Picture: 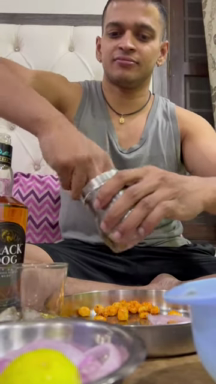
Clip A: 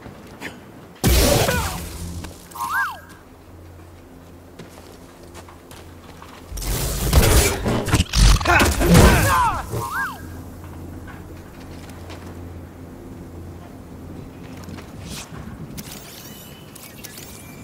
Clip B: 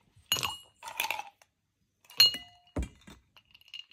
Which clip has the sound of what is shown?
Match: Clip B